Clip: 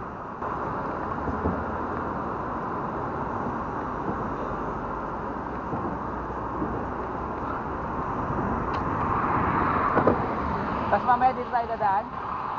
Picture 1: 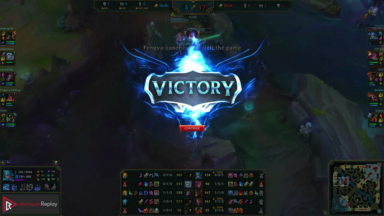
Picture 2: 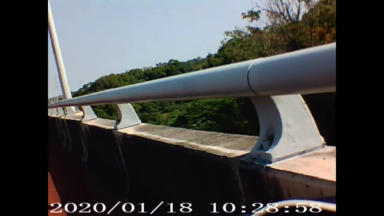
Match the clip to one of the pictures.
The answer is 2